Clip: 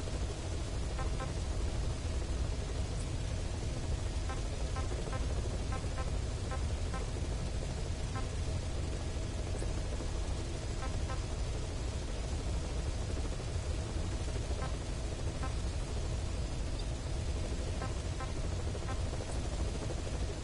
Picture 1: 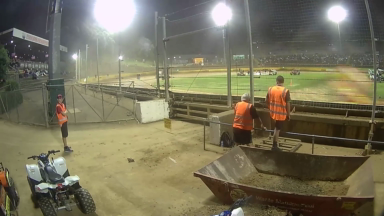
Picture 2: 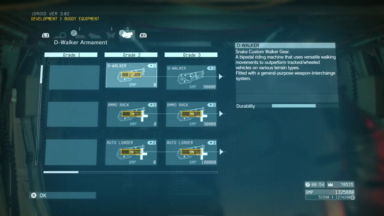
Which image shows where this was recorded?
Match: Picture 2